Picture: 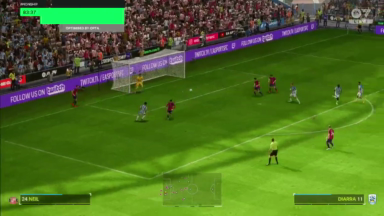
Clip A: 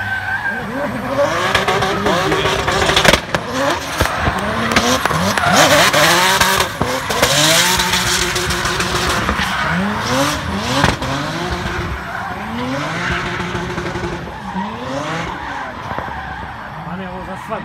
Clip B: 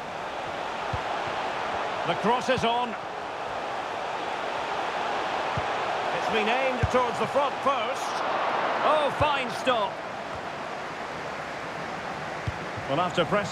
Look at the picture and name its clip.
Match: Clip B